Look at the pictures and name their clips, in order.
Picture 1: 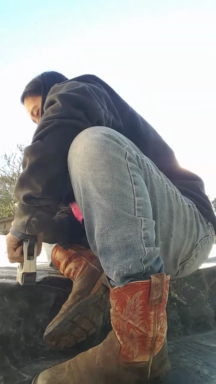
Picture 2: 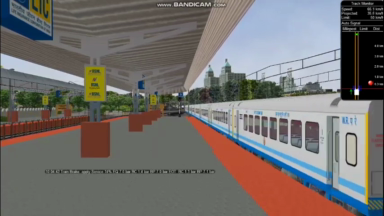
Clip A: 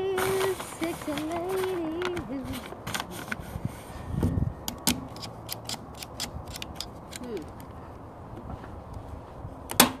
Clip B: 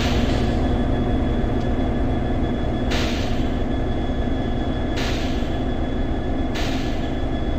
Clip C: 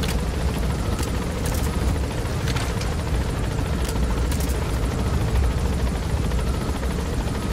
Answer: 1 A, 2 B